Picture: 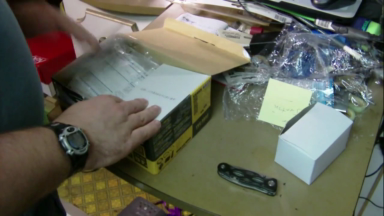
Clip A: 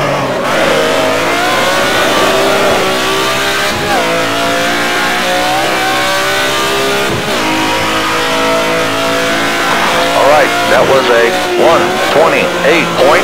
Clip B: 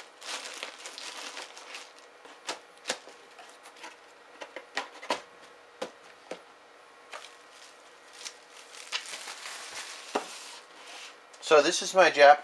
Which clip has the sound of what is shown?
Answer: B